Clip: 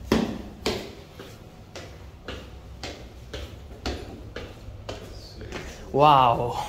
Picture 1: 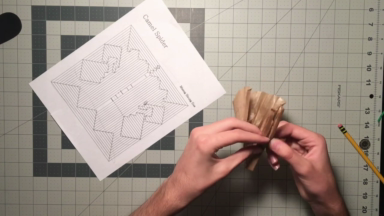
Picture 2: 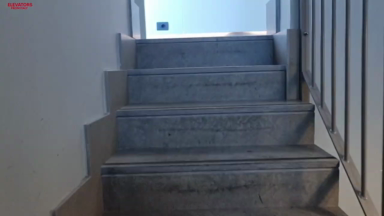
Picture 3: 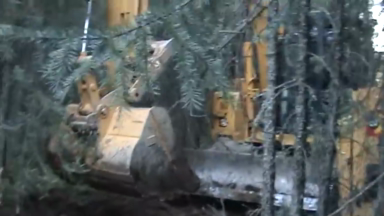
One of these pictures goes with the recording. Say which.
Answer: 2